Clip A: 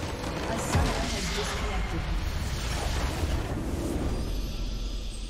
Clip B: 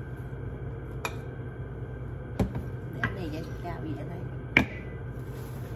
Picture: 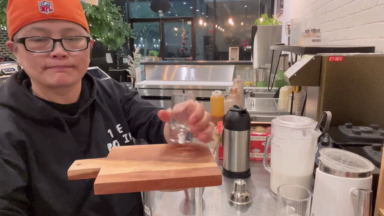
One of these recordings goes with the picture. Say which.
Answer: B